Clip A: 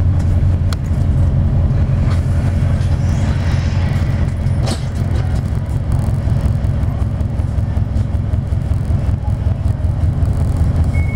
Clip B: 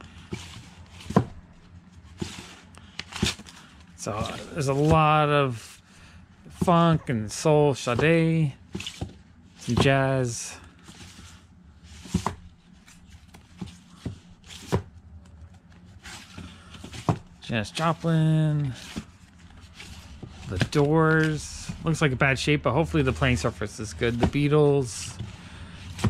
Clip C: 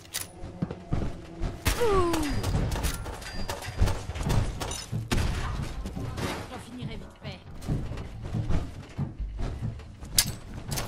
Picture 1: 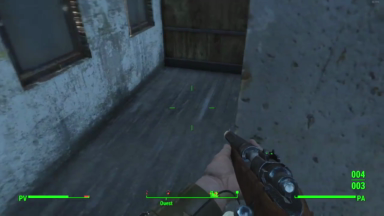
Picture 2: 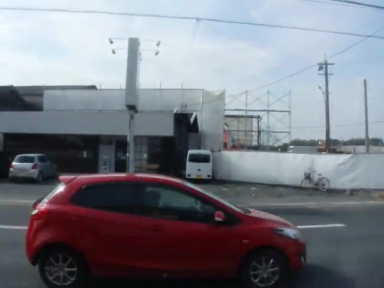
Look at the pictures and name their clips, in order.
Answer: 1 C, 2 A